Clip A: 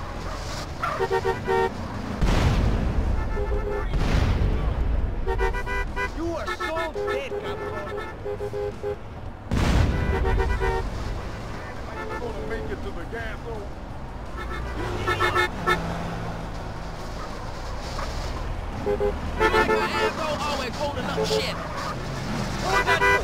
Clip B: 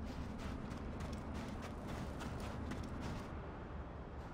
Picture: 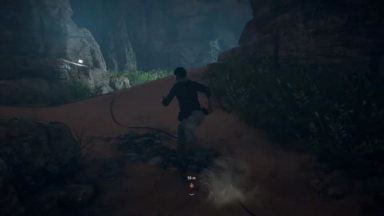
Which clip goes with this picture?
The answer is B